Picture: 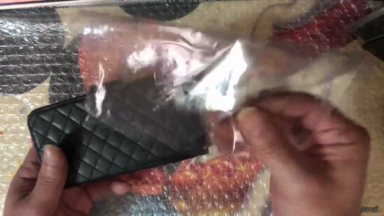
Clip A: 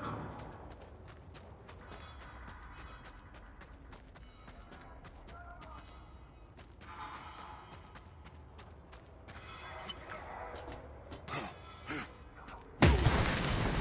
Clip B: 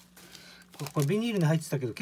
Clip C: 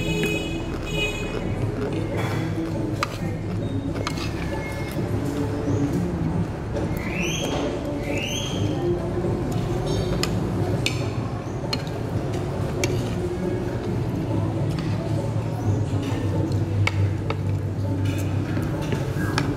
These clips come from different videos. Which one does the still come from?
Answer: B